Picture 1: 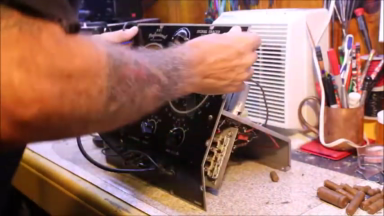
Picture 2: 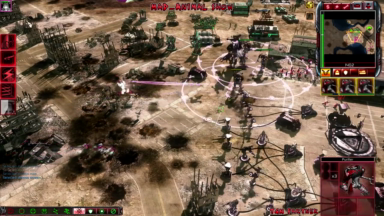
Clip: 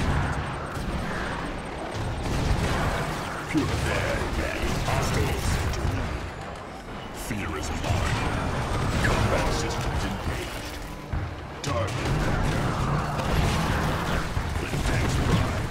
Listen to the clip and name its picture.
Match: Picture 2